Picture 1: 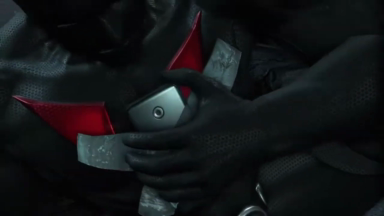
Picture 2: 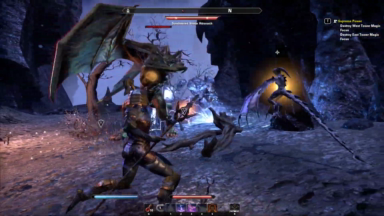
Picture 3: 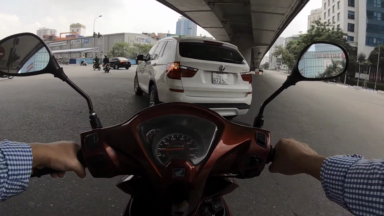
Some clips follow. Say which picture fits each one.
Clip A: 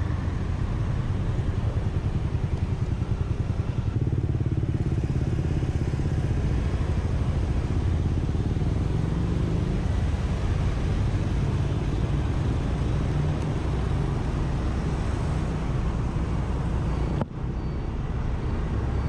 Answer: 3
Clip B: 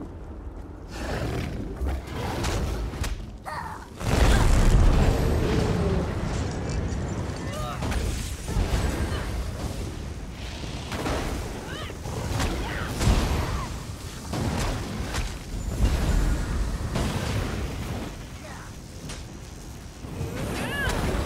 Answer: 2